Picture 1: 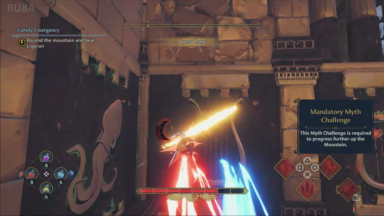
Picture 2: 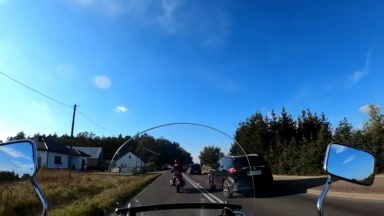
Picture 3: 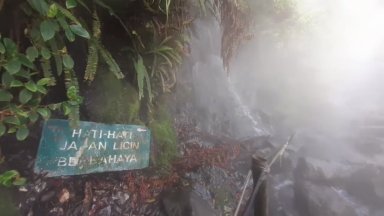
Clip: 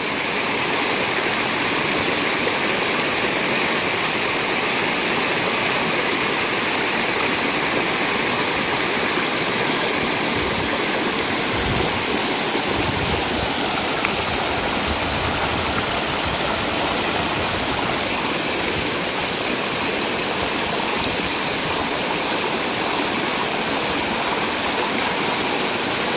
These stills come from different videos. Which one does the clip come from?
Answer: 3